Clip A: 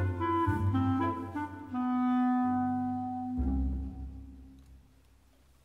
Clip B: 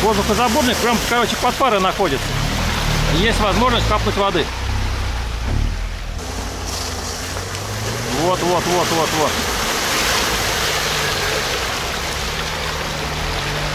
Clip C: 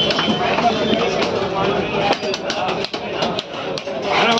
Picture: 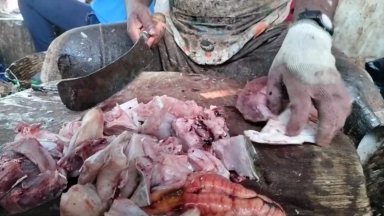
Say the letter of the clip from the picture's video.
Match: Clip C